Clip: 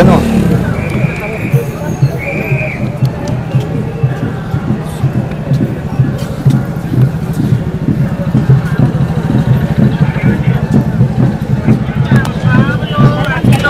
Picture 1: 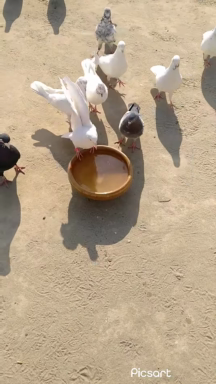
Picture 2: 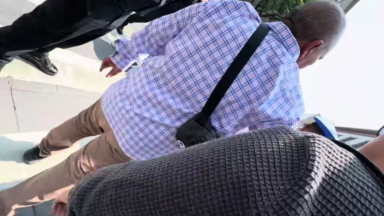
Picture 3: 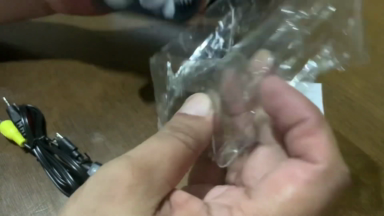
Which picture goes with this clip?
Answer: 2